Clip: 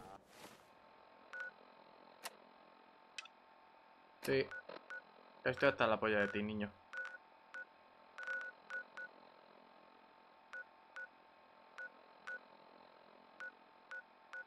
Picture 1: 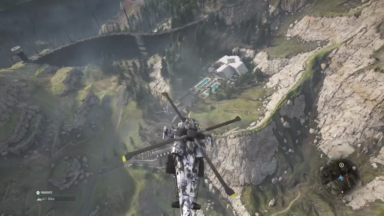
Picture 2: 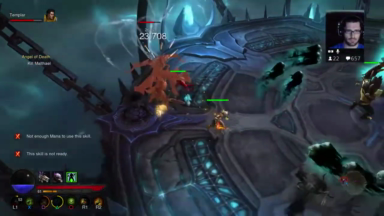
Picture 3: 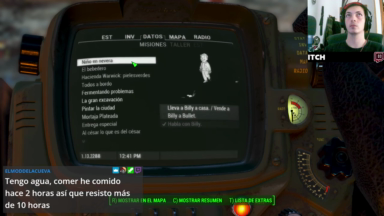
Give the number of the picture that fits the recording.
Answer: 3